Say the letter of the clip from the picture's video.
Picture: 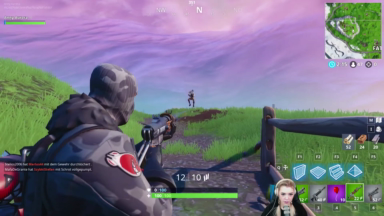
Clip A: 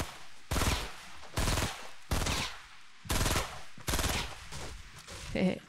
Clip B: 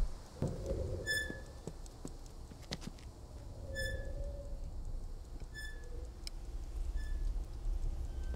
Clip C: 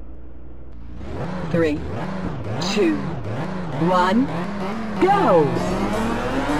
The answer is A